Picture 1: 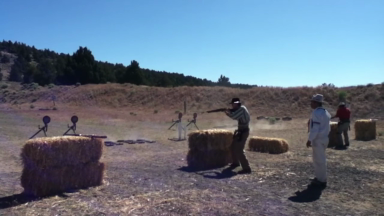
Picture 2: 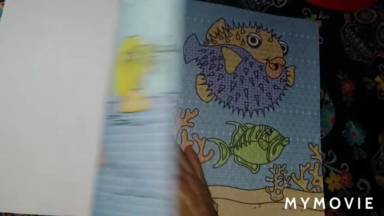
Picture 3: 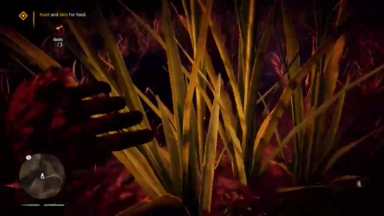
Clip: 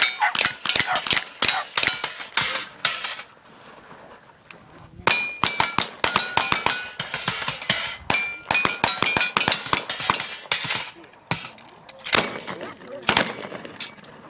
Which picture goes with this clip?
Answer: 1